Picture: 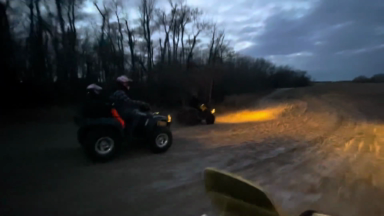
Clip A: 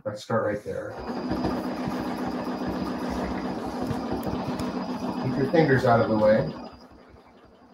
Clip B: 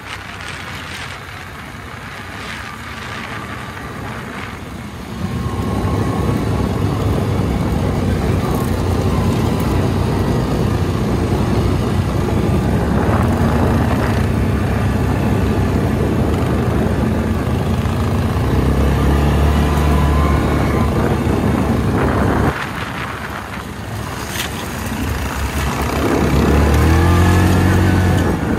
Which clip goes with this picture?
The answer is B